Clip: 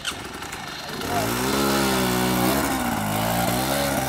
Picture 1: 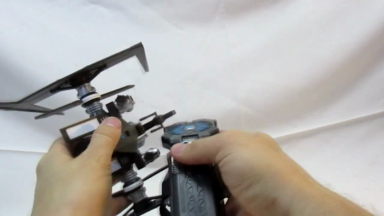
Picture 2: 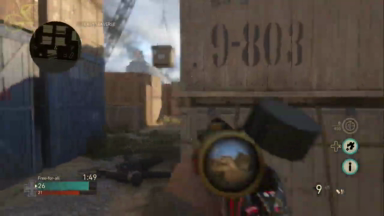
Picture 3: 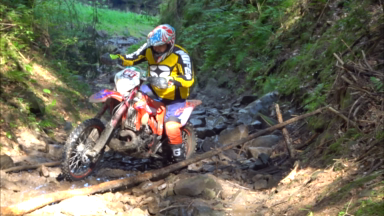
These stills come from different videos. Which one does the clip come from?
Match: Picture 3